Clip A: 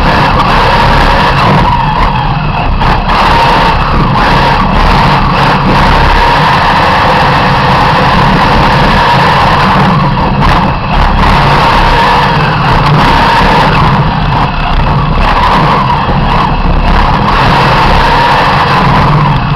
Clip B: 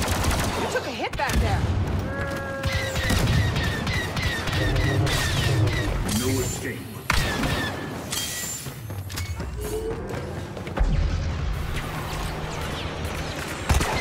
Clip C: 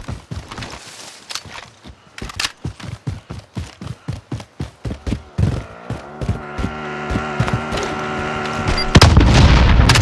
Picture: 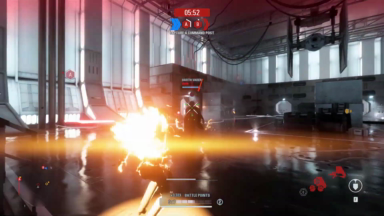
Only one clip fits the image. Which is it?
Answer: B